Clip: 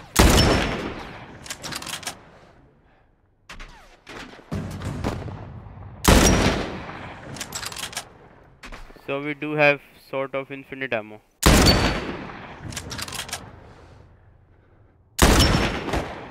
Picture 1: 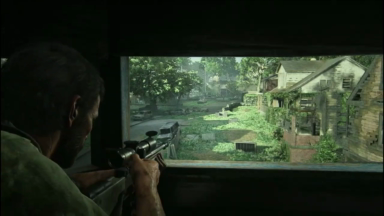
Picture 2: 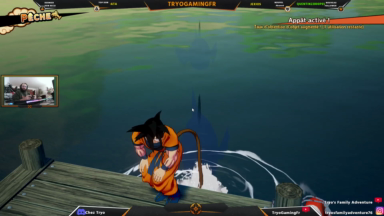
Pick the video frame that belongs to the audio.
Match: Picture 1